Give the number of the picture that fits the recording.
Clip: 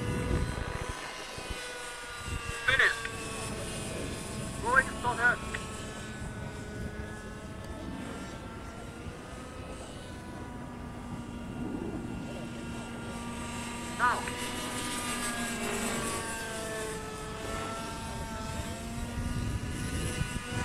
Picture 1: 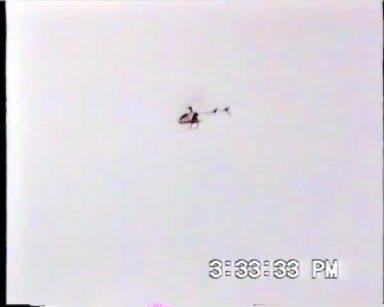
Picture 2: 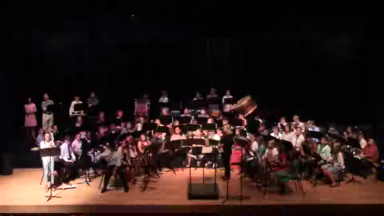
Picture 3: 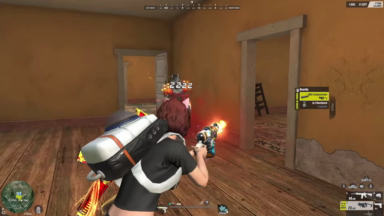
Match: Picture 1